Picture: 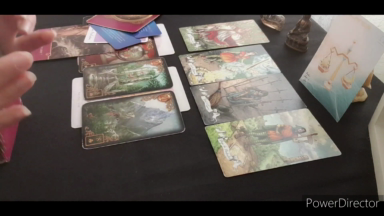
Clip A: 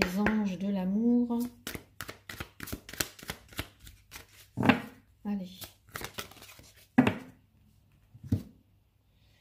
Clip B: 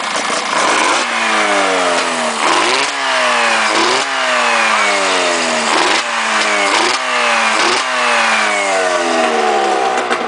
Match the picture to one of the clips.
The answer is A